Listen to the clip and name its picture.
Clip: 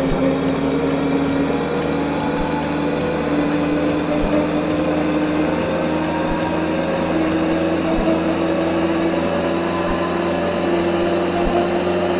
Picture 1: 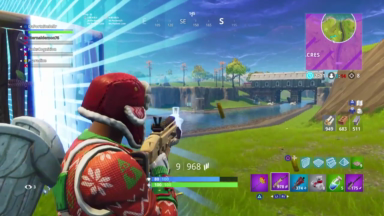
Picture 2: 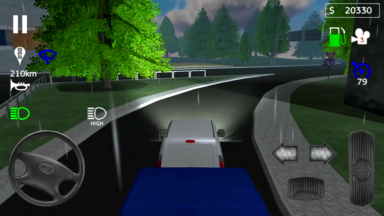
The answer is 2